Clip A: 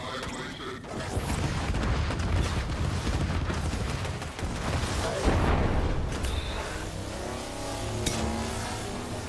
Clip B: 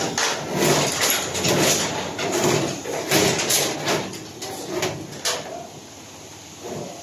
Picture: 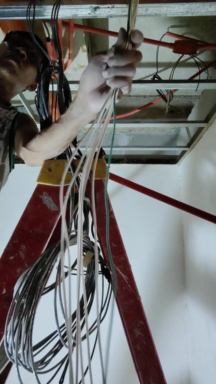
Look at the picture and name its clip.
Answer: B